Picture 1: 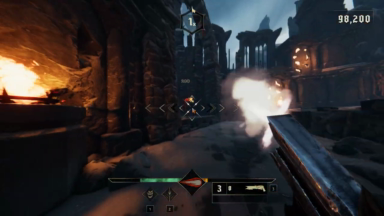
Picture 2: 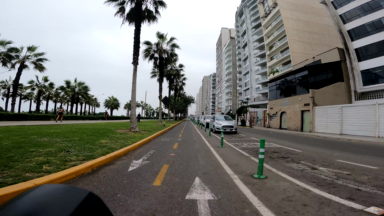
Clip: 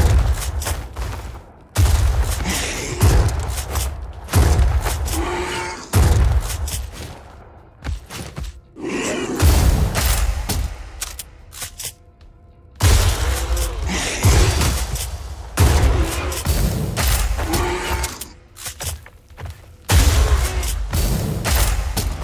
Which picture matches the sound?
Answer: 1